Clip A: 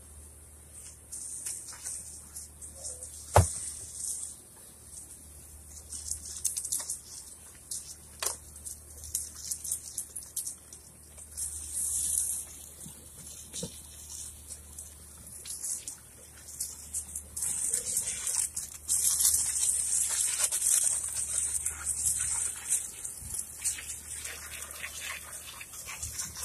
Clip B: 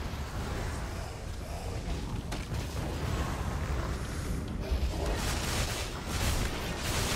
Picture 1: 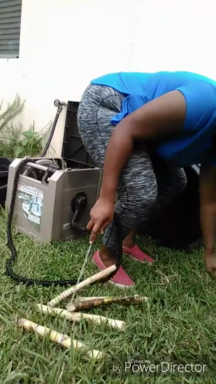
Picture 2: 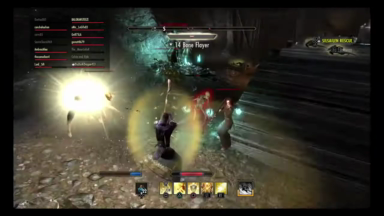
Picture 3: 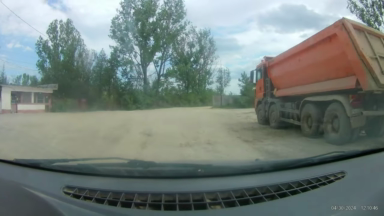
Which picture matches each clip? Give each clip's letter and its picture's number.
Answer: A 1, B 2